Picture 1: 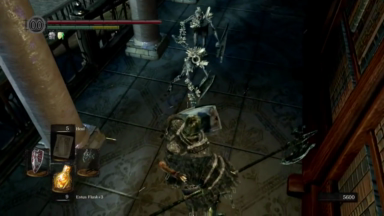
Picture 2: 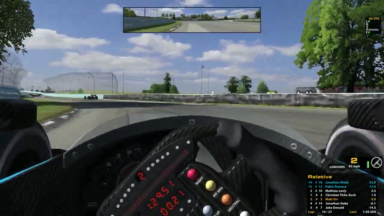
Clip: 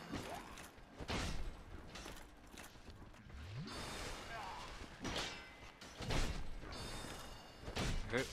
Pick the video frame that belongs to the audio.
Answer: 1